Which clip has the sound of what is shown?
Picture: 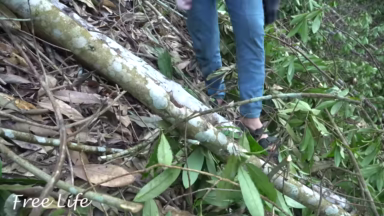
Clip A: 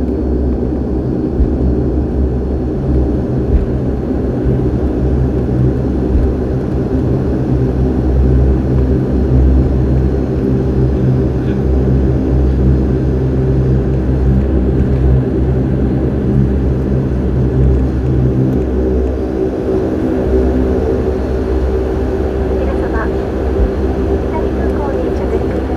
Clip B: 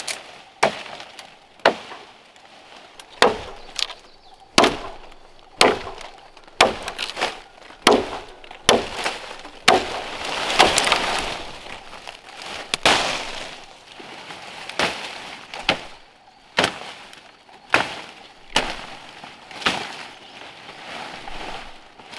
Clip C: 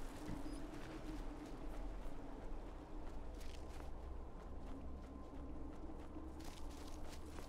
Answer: B